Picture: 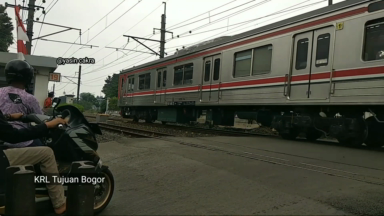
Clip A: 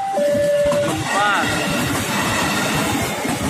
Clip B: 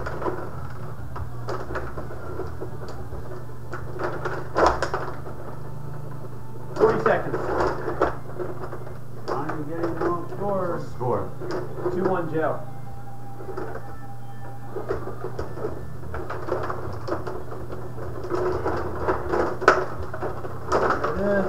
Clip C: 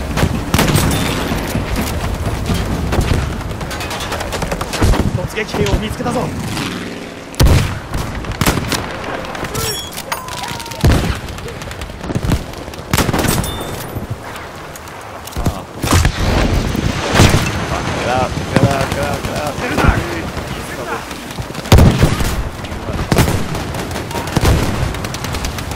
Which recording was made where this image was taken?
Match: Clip A